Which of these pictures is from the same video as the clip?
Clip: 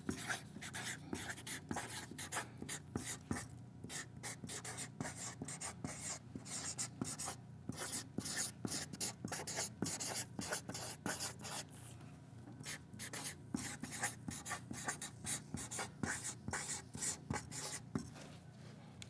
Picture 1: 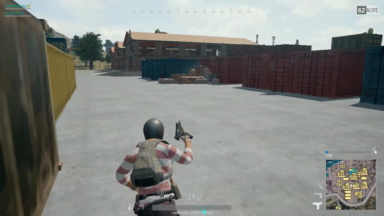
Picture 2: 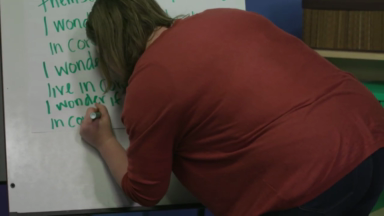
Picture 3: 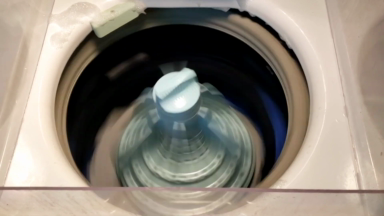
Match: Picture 2